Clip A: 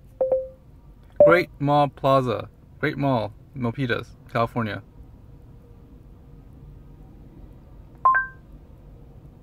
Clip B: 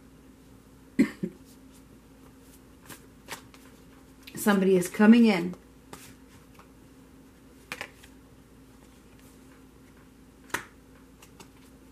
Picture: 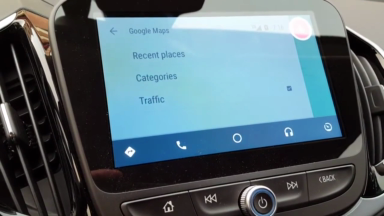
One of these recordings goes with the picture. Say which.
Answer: A